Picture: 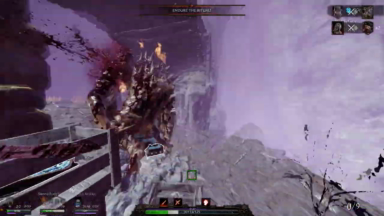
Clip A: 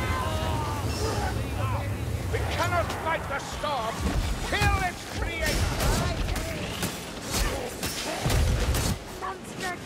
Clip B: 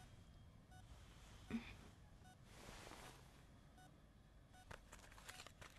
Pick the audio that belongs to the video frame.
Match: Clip A